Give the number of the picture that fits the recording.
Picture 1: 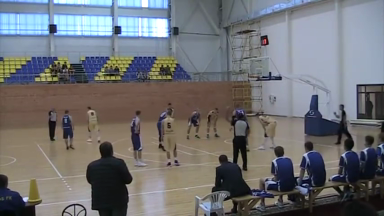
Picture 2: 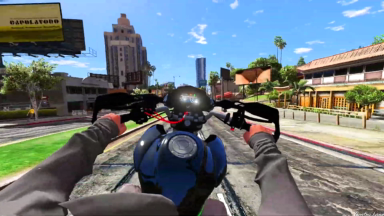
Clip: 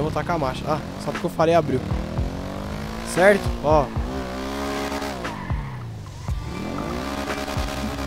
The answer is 2